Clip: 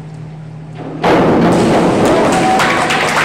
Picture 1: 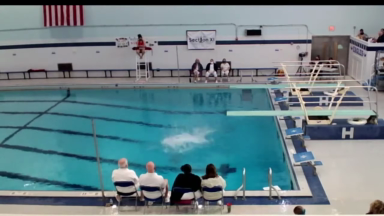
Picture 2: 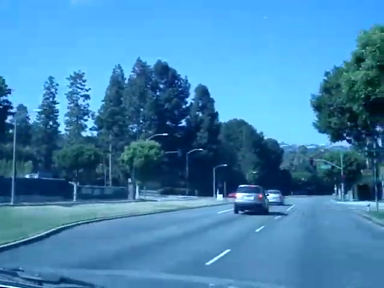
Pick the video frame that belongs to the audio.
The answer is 1